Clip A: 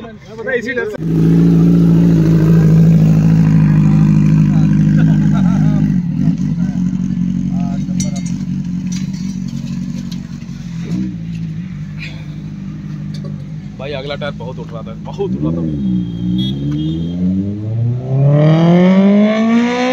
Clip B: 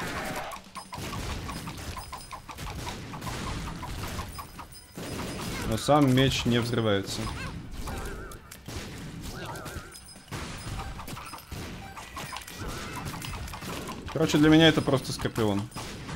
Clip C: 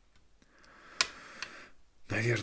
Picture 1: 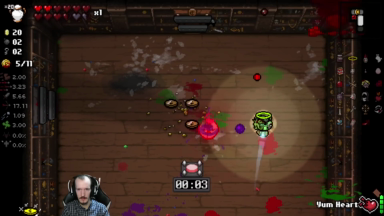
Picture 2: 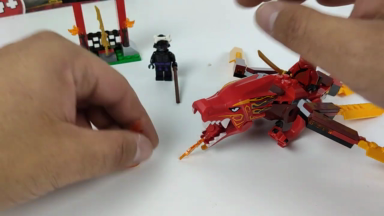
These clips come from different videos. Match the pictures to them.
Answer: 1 B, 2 C